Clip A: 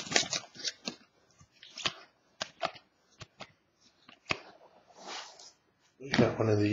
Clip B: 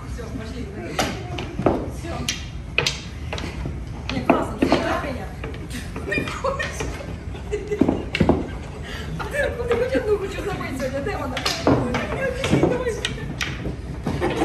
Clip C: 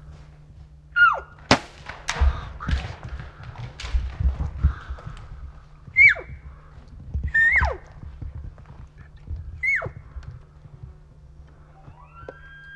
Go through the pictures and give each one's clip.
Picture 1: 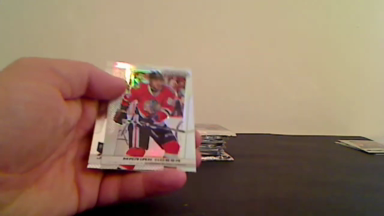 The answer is A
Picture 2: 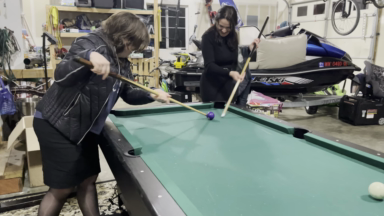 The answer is B